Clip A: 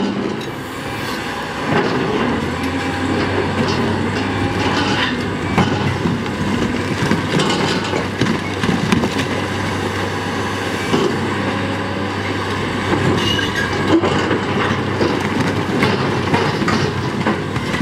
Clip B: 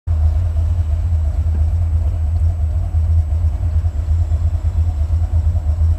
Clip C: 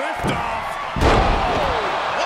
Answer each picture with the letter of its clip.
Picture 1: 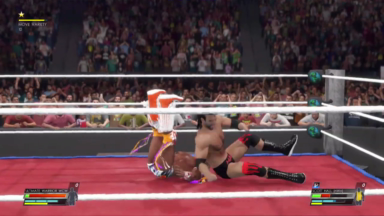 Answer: C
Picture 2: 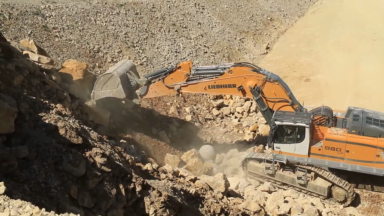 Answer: A